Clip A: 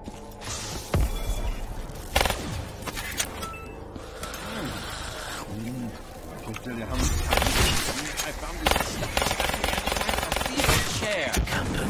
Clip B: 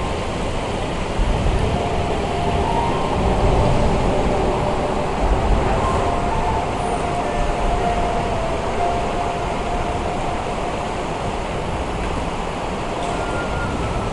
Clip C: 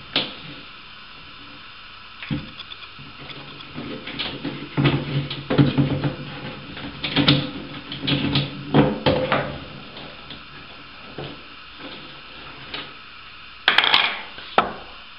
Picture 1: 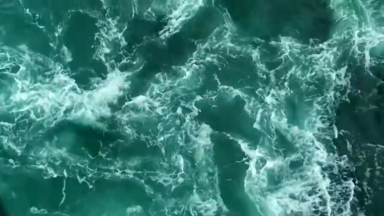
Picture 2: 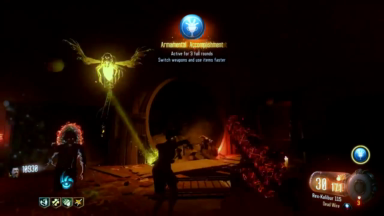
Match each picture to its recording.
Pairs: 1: B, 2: A